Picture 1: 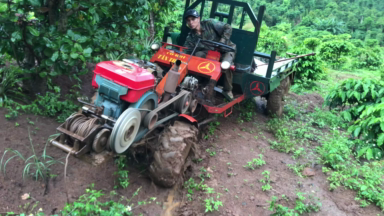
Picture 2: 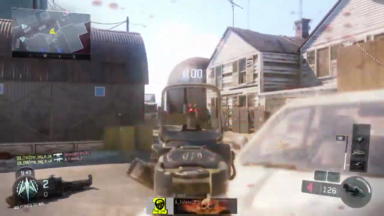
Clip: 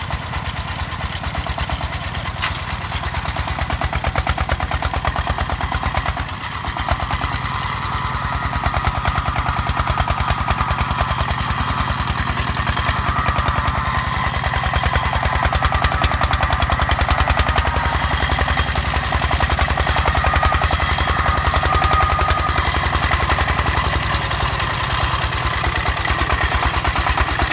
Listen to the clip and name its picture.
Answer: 1